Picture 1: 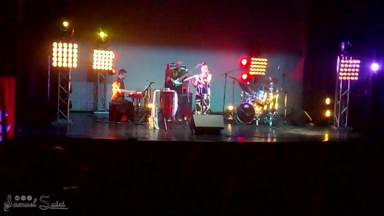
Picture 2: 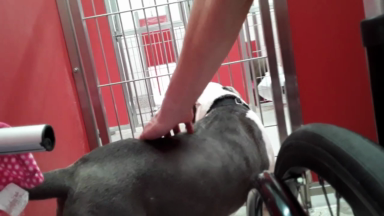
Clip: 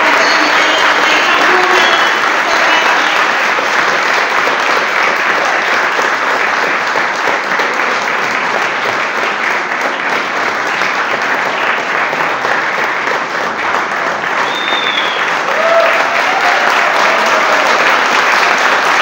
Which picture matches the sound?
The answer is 1